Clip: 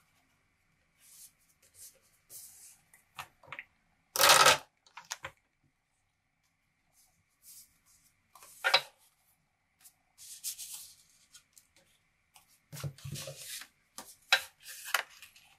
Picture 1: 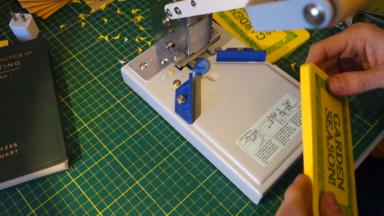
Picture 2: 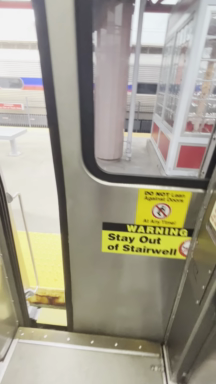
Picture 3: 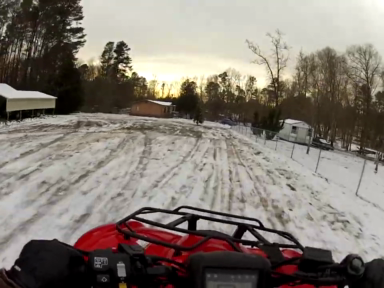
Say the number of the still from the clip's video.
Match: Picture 1